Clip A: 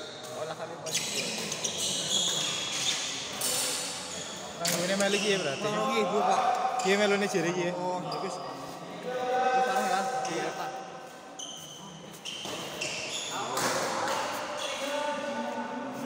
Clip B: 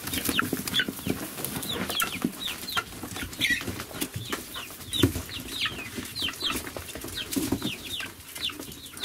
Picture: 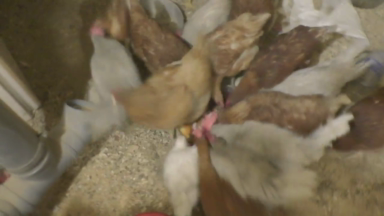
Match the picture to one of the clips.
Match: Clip B